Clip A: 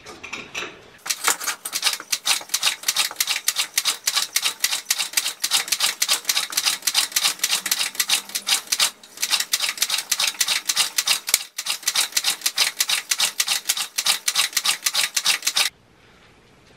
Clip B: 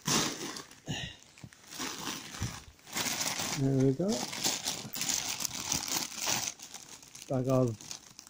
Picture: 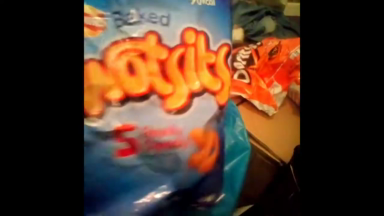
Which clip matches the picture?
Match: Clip B